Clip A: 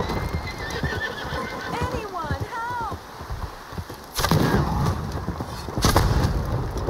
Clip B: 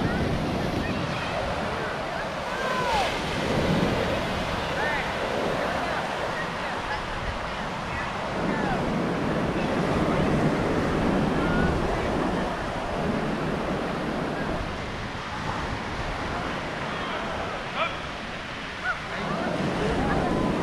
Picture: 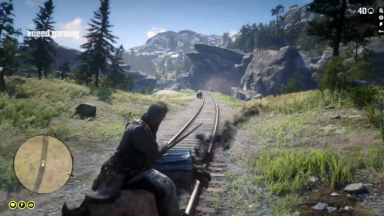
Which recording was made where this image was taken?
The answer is A